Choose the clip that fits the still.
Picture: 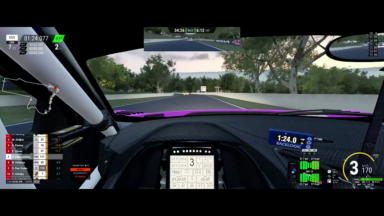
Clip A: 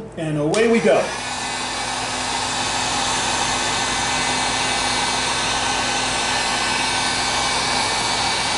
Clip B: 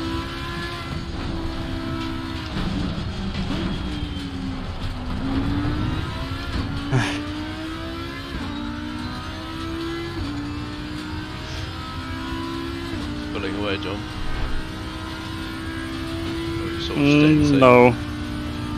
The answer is B